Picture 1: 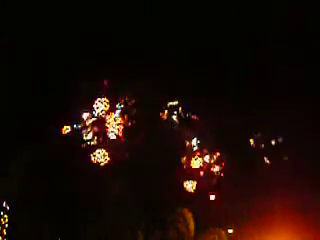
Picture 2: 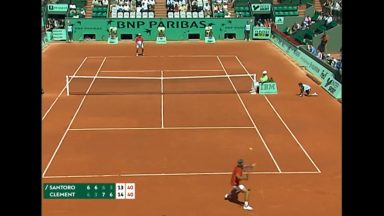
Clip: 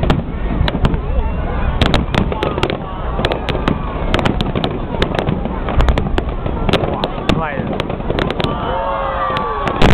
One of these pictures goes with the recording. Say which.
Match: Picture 1